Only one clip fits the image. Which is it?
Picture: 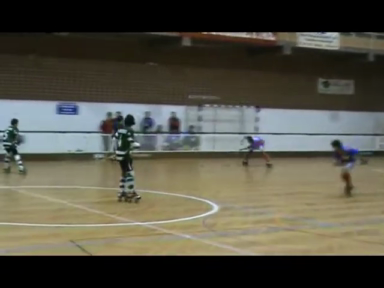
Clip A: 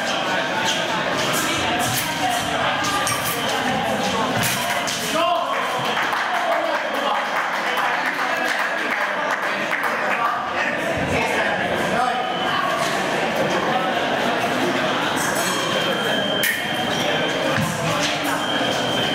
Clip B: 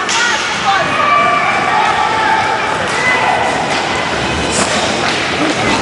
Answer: B